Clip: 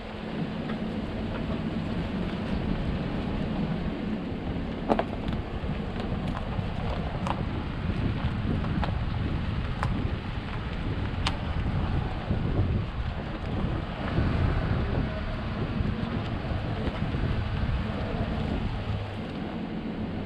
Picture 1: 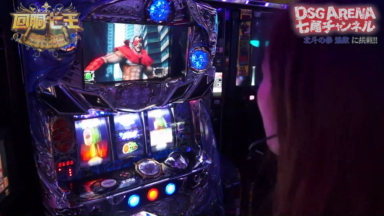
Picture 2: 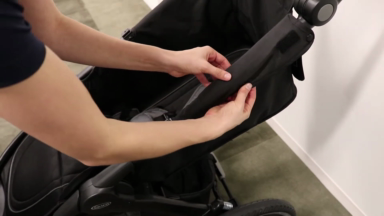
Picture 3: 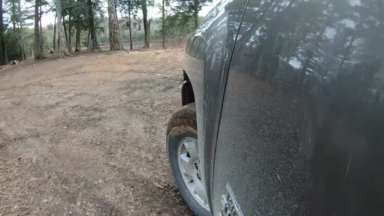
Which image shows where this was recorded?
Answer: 3